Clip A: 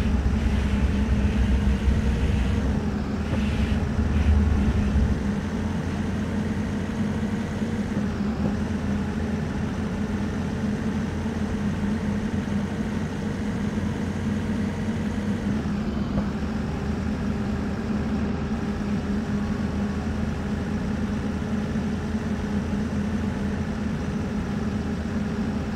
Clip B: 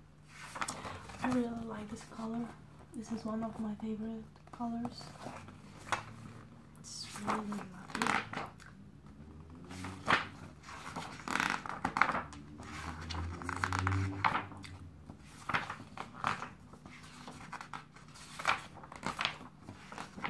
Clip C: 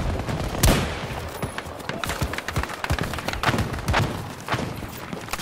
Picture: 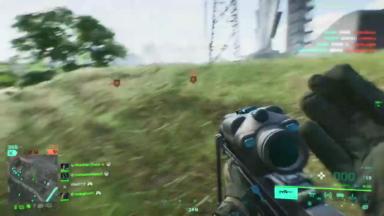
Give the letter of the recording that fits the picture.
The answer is C